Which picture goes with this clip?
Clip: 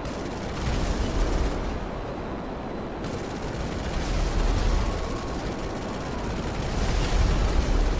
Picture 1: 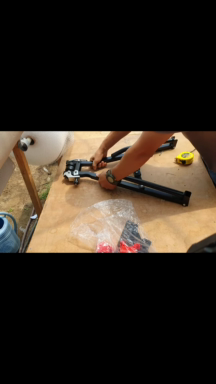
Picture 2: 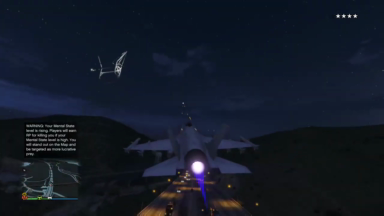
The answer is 2